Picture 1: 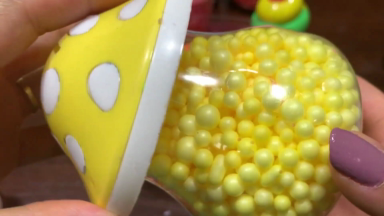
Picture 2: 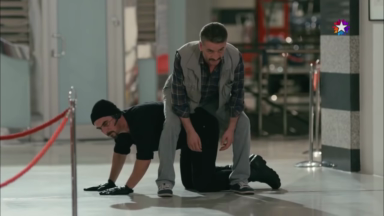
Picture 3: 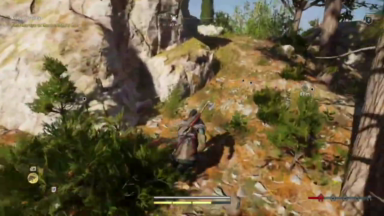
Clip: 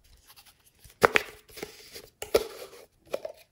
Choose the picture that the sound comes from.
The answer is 1